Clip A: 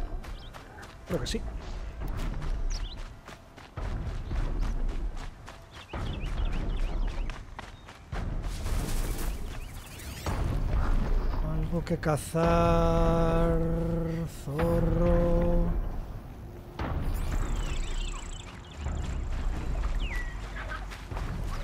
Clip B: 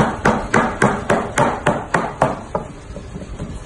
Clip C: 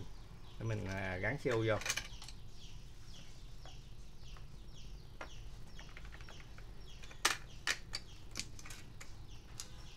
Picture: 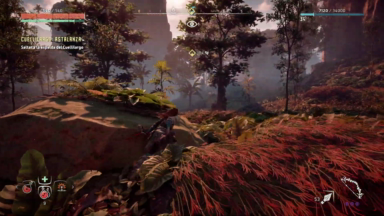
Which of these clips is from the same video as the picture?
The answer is A